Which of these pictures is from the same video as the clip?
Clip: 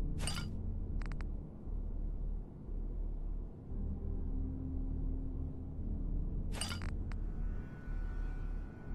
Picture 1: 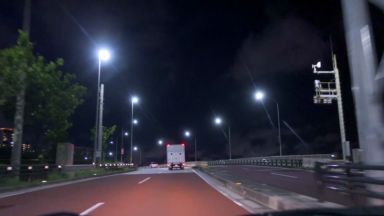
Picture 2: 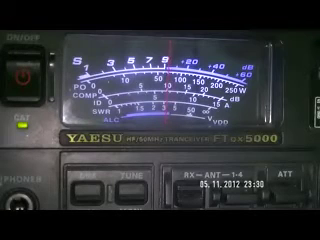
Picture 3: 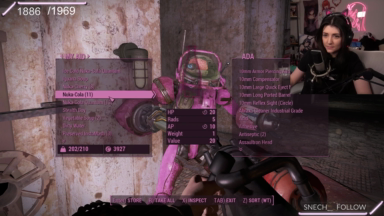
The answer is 3